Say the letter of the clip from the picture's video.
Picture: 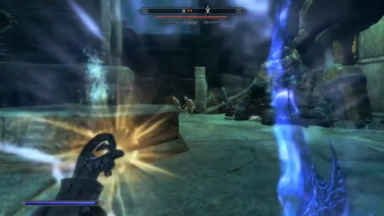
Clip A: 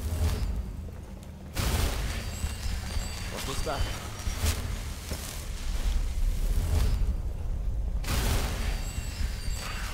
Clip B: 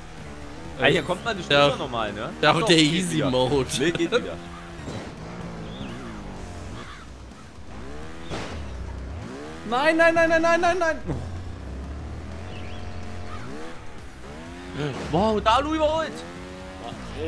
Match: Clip A